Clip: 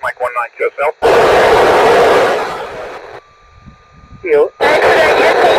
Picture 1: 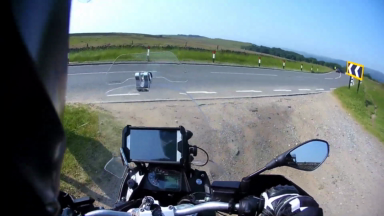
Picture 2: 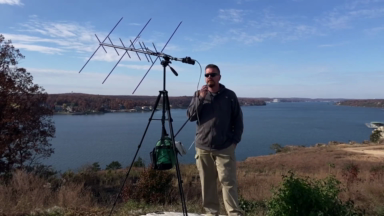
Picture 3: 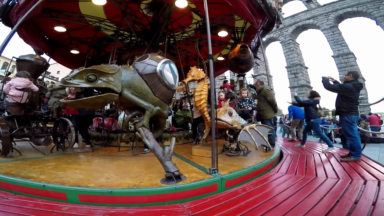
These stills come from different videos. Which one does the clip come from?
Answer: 2